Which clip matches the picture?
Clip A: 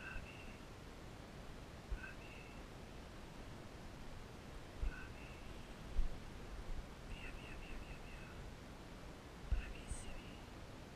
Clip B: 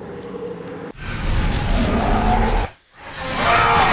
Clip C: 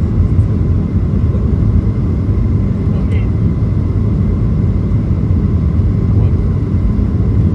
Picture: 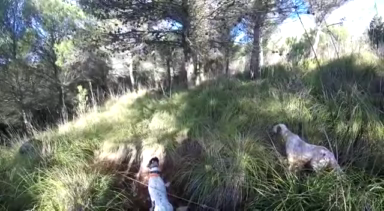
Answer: A